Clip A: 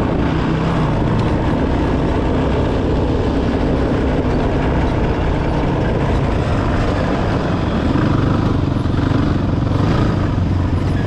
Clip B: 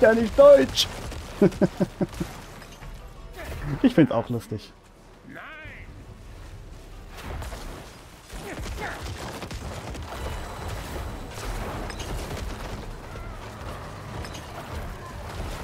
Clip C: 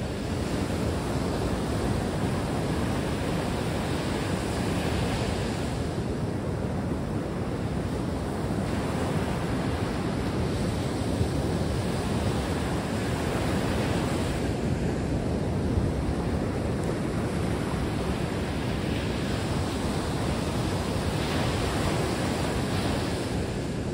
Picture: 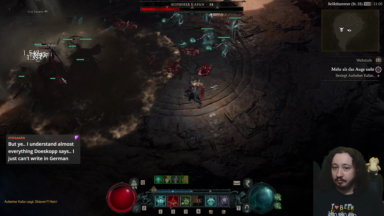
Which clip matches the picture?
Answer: B